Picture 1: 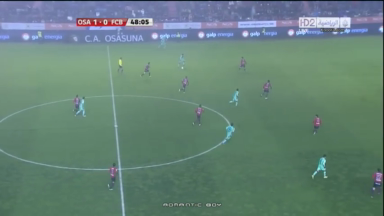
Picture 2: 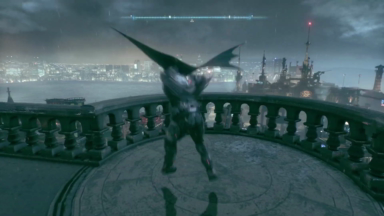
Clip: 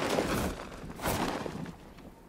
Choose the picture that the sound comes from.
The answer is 2